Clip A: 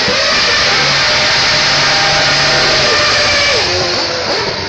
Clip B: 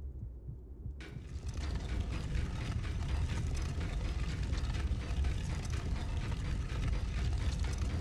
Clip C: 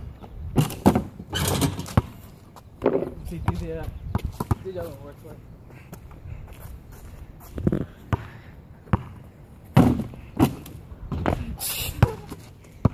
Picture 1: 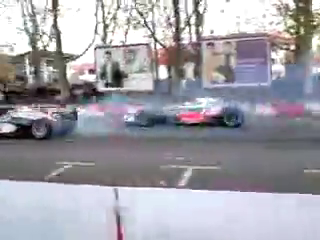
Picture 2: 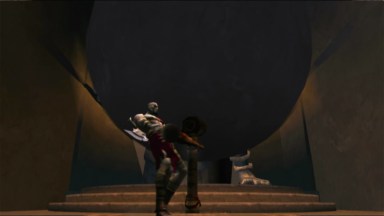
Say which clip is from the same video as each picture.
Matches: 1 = A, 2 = B